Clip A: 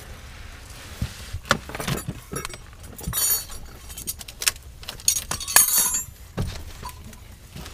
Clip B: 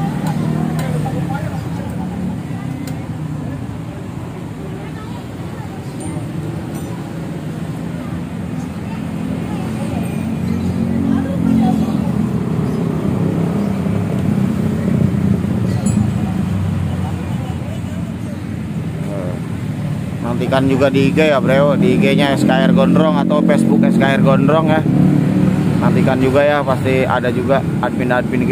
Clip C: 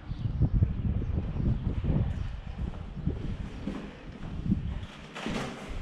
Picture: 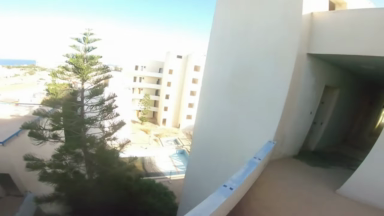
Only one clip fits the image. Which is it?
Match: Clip C